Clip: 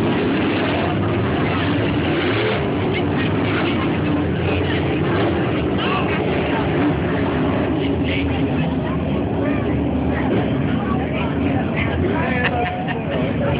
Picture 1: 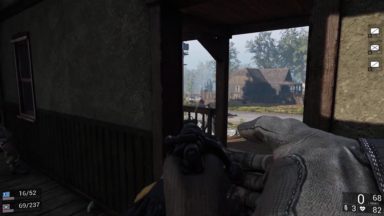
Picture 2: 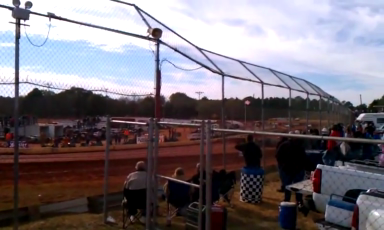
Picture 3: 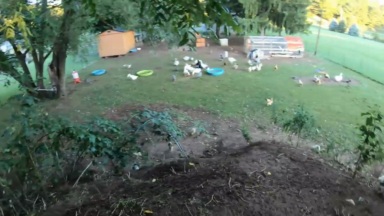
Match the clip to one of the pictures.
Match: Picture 2